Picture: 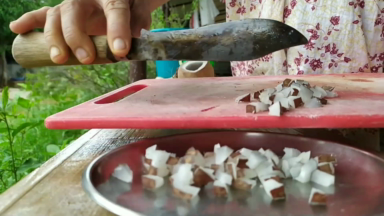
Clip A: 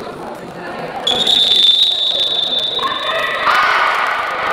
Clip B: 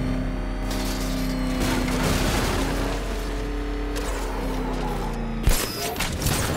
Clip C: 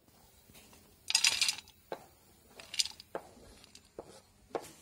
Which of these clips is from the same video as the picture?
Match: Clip C